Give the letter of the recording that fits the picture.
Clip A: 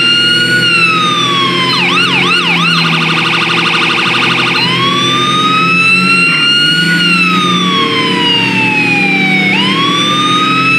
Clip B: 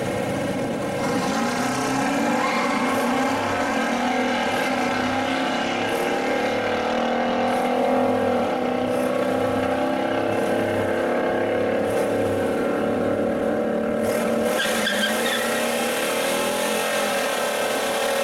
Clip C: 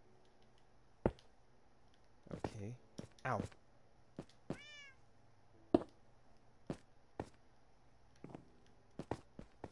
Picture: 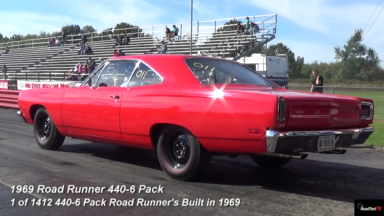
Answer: B